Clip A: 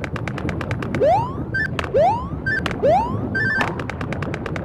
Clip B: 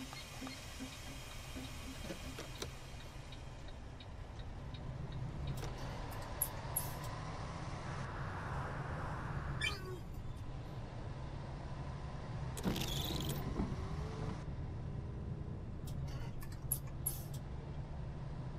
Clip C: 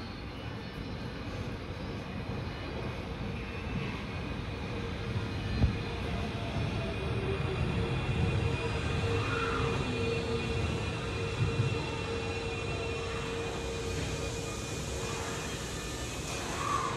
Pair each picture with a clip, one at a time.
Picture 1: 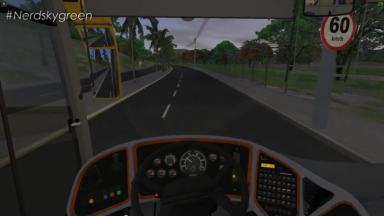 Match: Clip B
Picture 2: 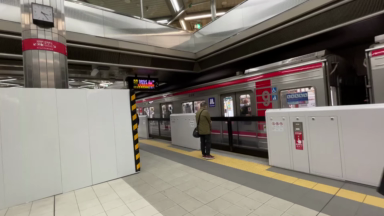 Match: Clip C